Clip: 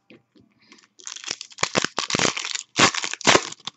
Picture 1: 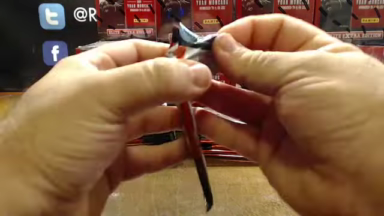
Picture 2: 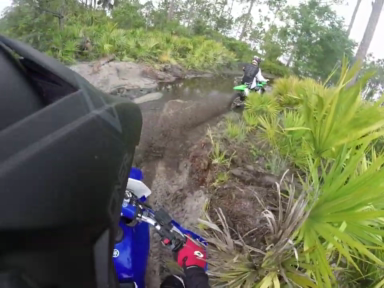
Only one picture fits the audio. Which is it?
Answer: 1